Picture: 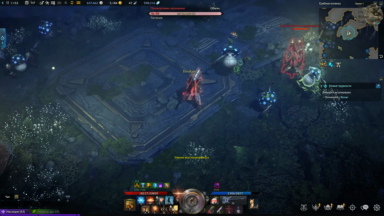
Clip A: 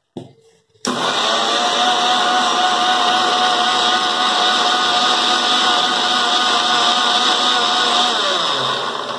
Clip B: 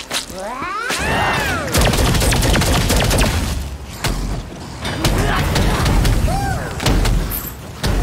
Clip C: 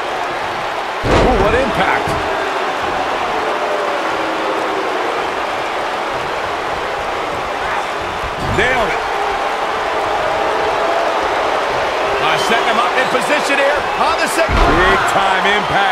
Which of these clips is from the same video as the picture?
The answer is B